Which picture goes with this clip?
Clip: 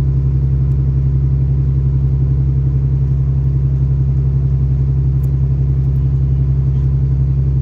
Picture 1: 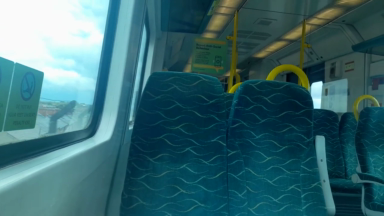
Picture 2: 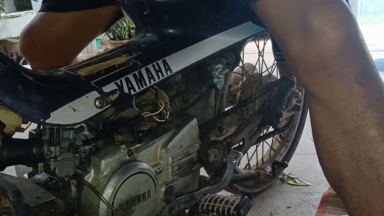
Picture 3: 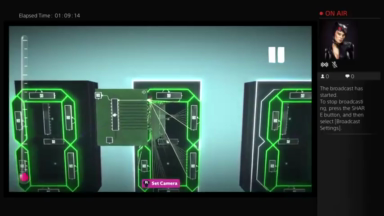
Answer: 1